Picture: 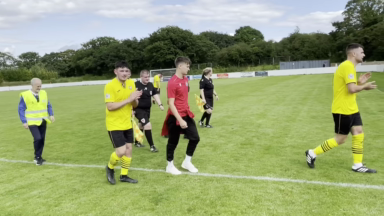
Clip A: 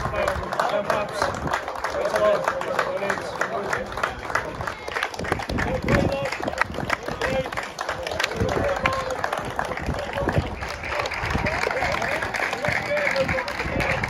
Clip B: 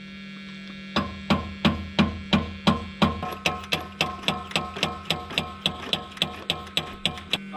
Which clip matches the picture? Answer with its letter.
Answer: A